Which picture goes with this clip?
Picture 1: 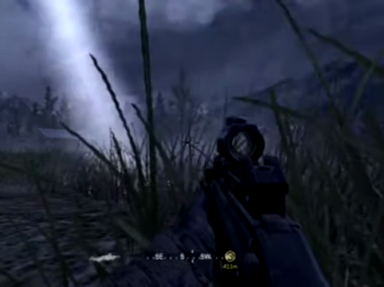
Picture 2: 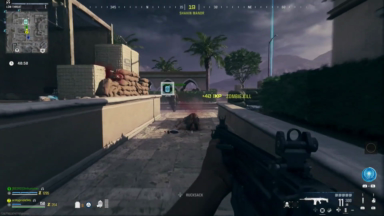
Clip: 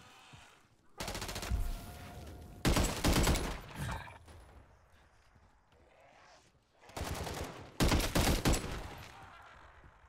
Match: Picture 2